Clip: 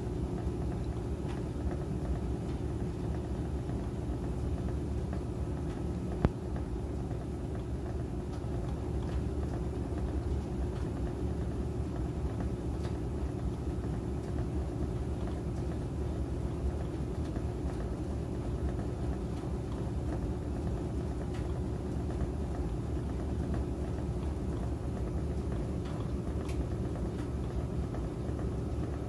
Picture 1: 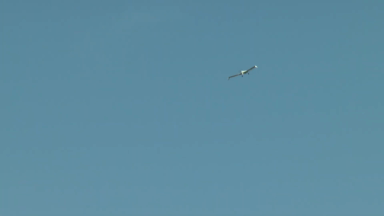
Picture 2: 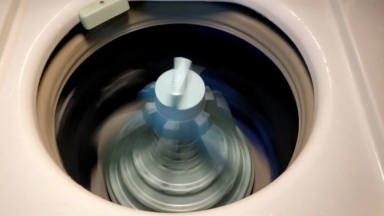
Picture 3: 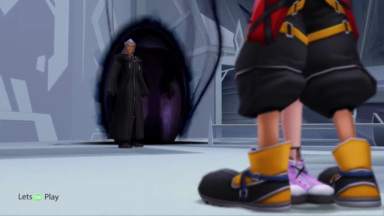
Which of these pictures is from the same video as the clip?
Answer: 2